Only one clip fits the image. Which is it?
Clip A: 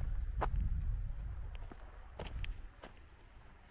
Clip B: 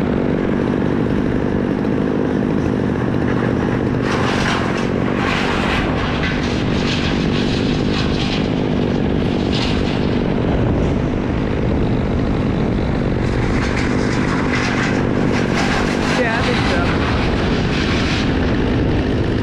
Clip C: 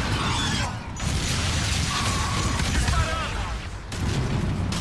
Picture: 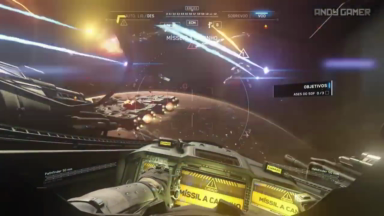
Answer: C